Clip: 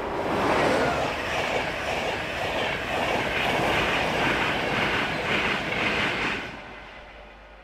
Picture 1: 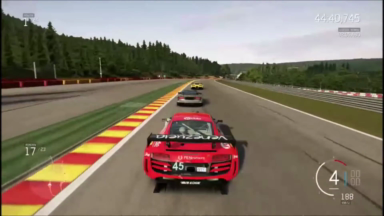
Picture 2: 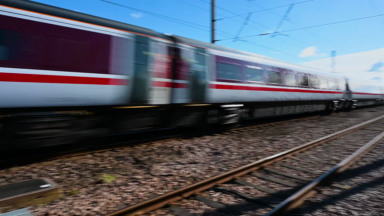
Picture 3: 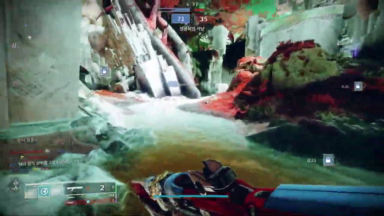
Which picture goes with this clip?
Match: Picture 2